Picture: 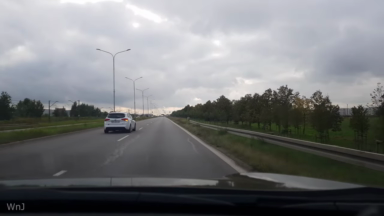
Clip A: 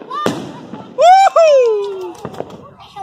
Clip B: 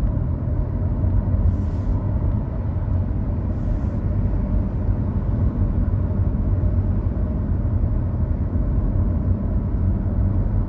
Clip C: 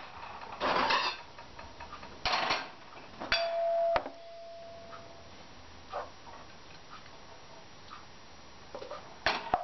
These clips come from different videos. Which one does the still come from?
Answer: B